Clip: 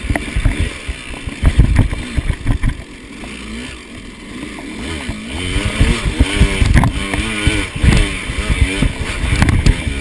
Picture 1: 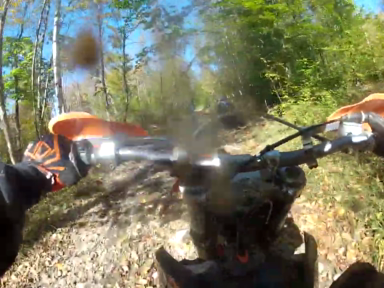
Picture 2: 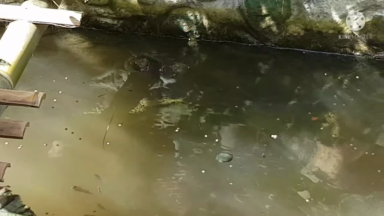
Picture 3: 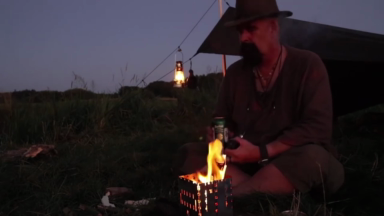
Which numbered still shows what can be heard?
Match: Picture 1